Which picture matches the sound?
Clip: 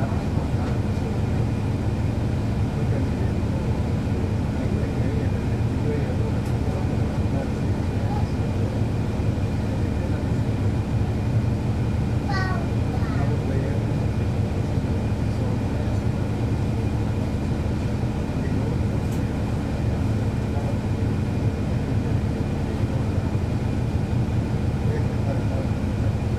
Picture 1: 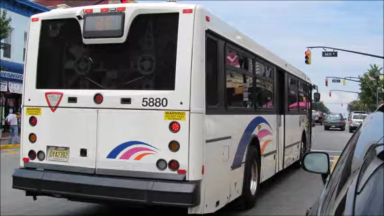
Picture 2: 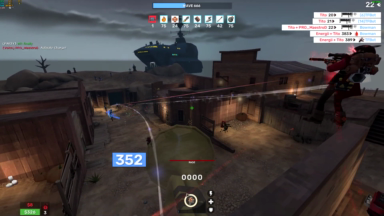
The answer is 1